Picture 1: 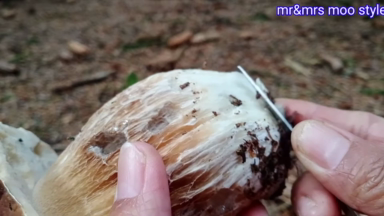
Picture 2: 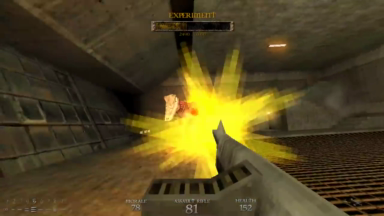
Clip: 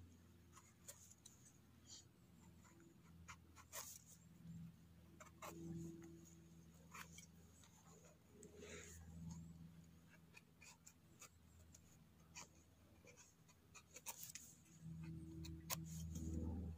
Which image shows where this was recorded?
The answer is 1